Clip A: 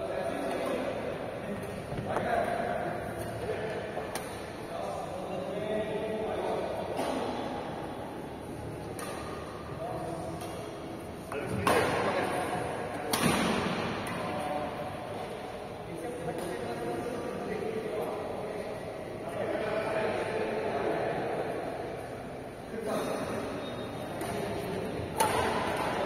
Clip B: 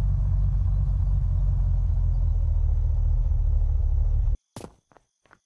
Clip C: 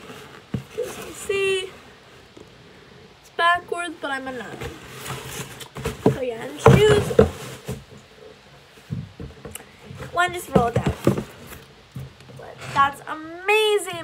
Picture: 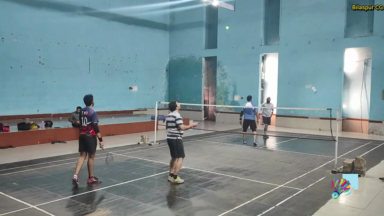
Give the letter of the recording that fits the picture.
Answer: A